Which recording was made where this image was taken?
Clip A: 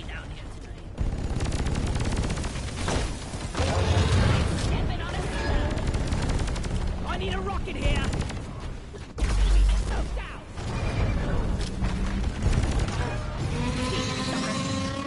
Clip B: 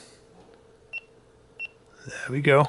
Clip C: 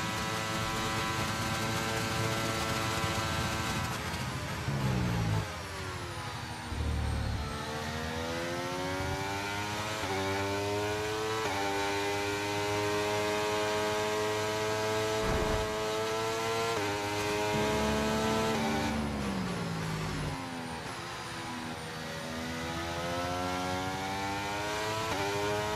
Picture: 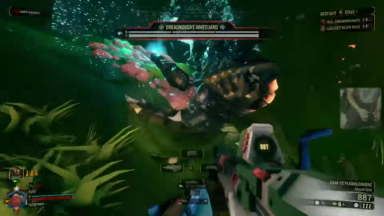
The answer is A